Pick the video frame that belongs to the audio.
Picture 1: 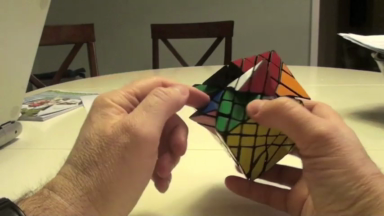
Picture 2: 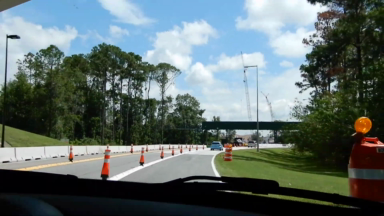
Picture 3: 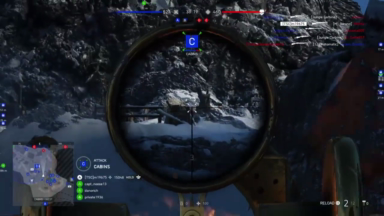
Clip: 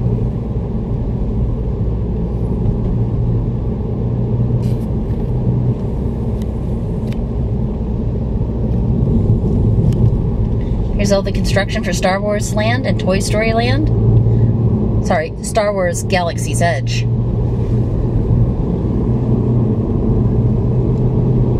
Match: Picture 2